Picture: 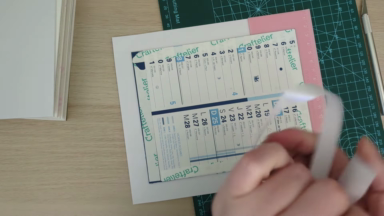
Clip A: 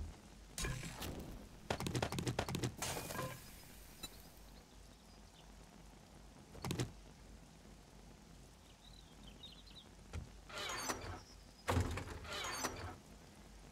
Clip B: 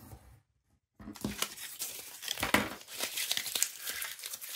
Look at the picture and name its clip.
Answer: B